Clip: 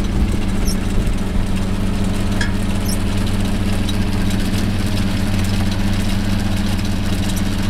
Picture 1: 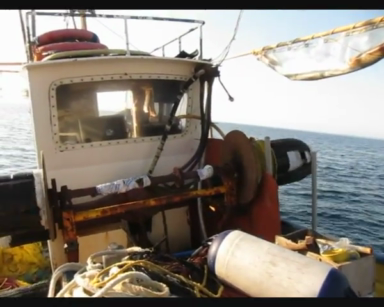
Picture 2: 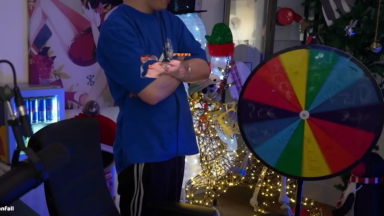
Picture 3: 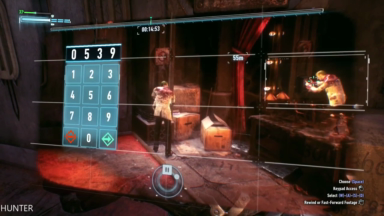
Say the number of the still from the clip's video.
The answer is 1